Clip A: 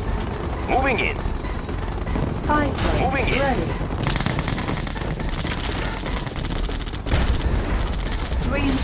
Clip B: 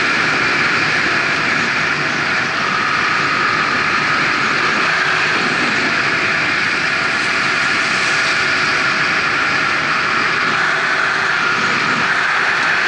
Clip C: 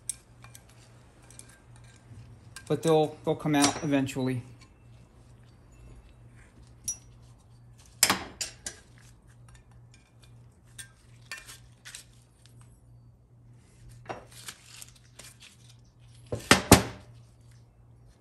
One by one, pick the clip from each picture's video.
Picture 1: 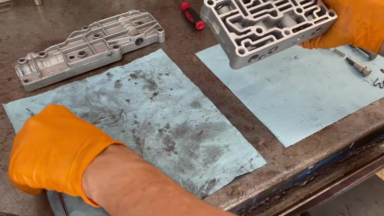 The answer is C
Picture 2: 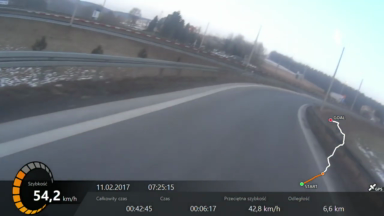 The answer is B